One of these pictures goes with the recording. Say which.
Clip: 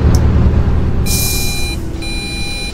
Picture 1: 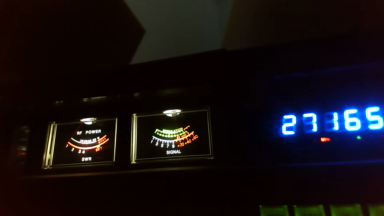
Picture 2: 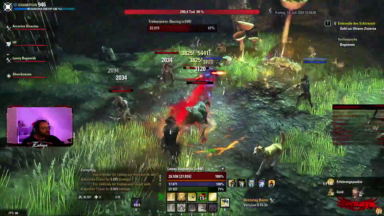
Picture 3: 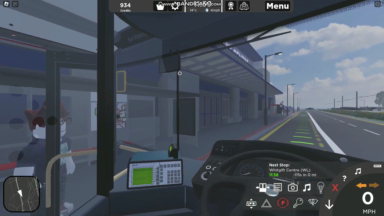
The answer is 3